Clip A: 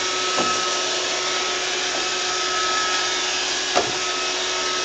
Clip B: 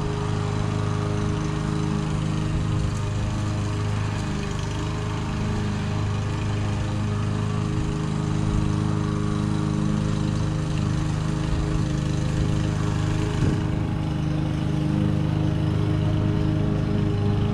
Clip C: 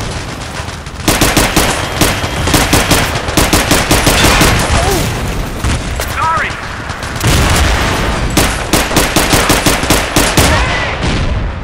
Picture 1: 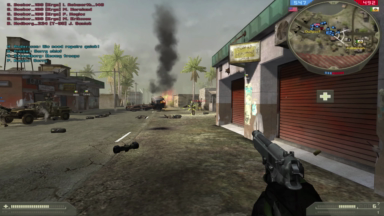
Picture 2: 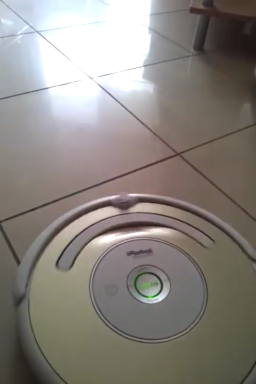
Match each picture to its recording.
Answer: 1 C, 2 A